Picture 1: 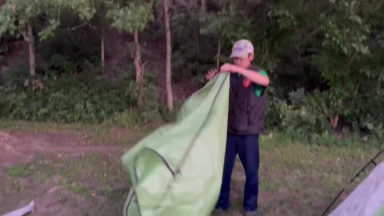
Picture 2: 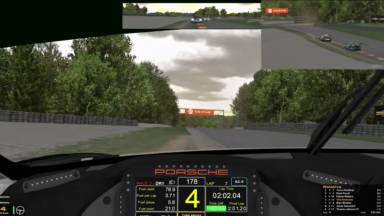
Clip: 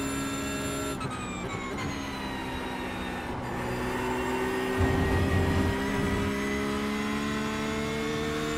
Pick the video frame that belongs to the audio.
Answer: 2